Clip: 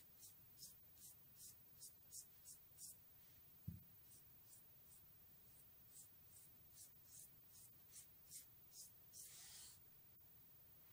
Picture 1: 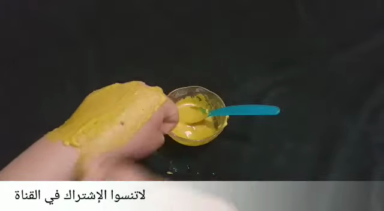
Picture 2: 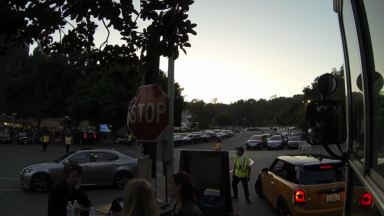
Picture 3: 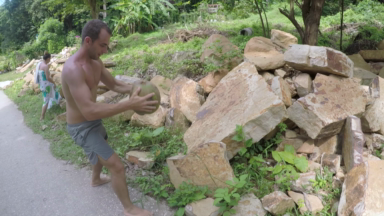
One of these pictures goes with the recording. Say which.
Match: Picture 1